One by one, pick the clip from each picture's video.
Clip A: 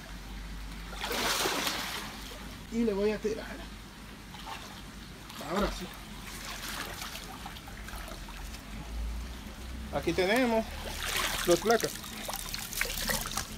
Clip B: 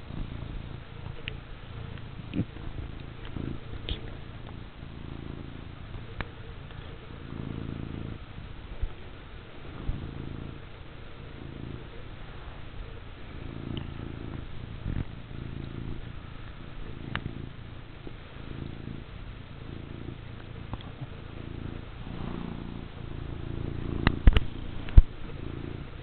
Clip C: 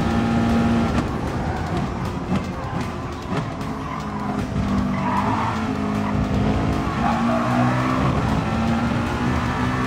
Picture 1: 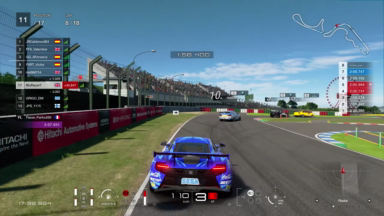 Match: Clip C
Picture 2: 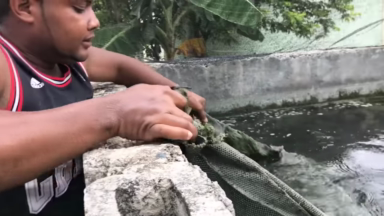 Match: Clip A